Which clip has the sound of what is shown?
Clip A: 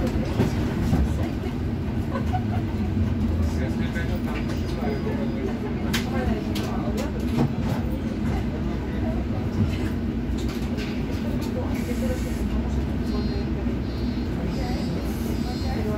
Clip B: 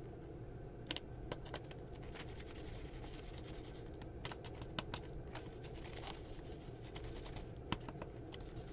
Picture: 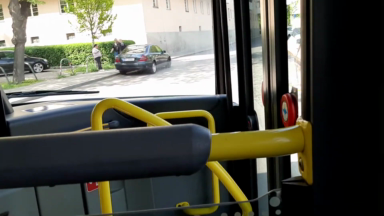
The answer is A